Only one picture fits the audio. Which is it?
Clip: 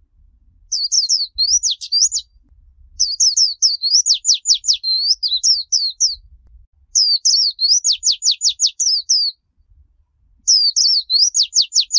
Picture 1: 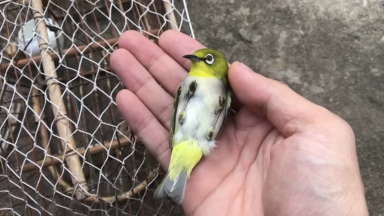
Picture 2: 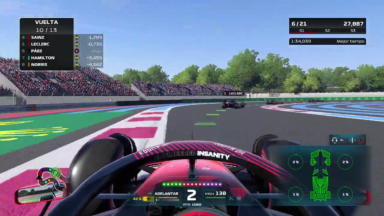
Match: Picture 1